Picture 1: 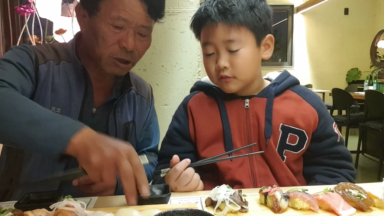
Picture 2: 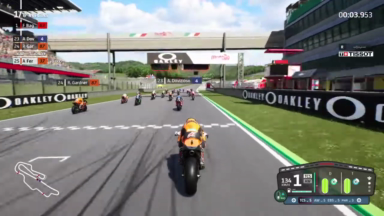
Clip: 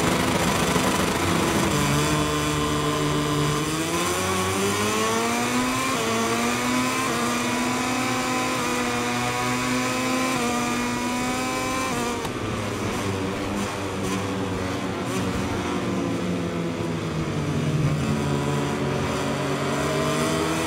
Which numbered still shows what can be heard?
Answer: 2